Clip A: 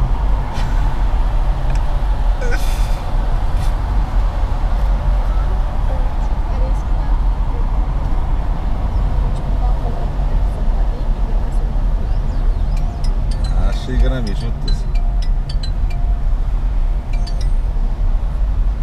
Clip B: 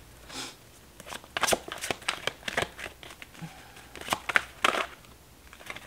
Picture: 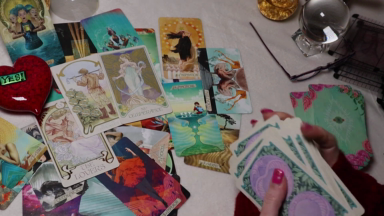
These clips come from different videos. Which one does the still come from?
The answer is B